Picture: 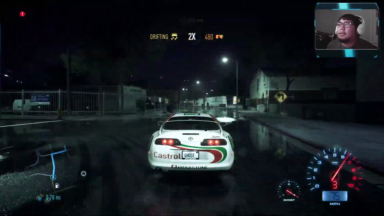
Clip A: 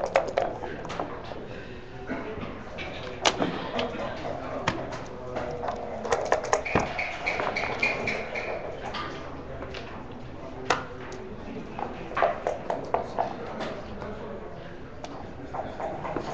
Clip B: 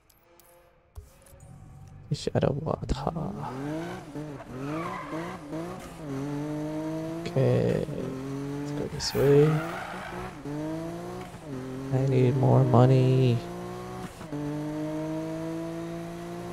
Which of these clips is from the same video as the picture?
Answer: B